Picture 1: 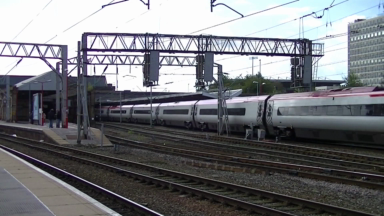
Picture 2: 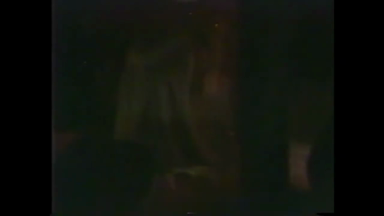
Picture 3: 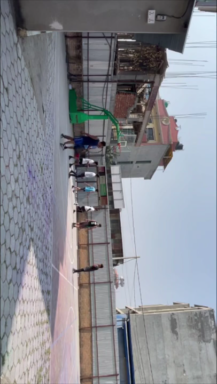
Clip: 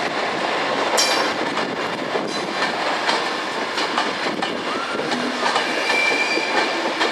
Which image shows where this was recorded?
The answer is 1